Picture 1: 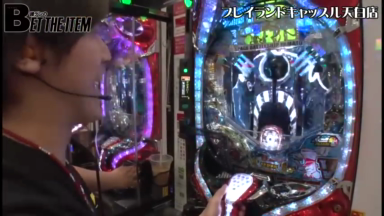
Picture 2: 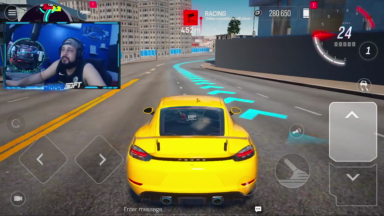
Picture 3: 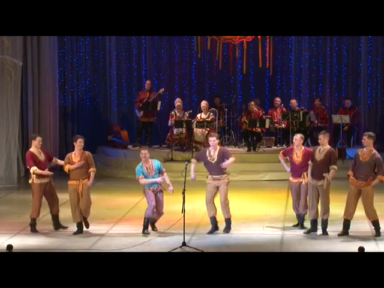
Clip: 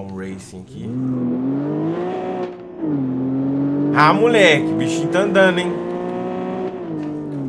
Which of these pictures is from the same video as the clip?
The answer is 2